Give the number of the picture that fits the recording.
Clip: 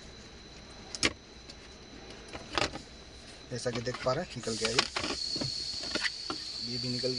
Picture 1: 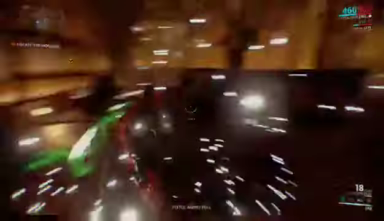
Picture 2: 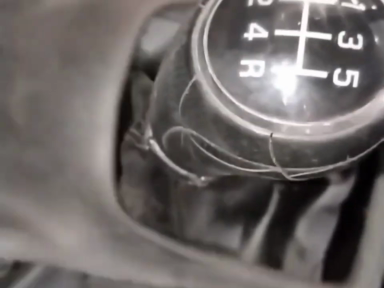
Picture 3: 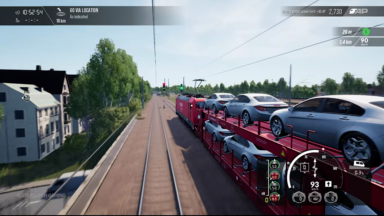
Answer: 2